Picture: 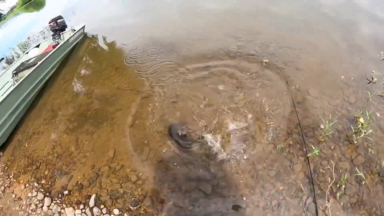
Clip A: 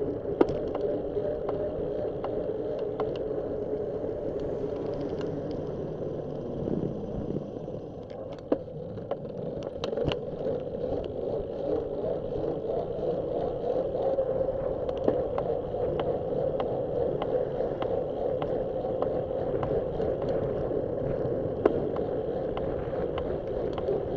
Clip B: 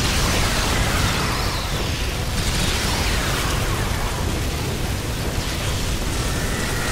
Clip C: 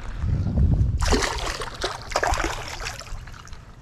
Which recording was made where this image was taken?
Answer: C